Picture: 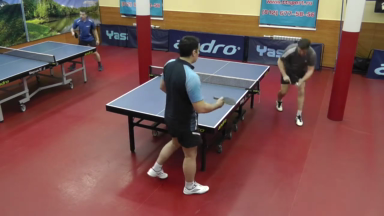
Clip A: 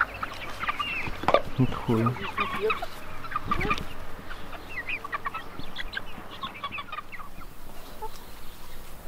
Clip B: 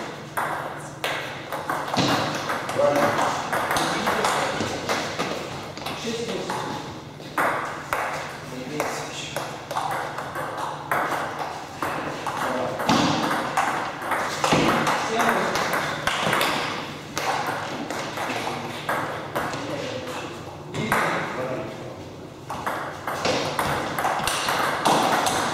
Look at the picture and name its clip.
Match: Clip B